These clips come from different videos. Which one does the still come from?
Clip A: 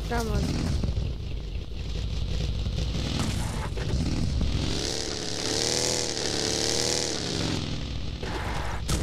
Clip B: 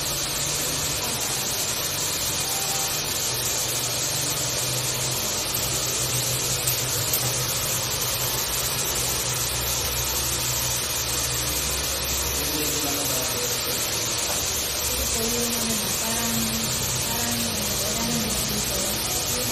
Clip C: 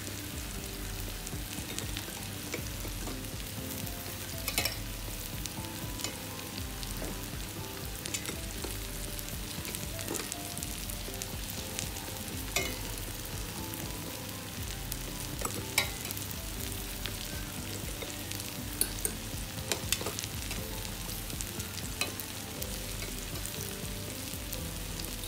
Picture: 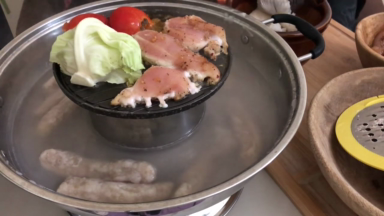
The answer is C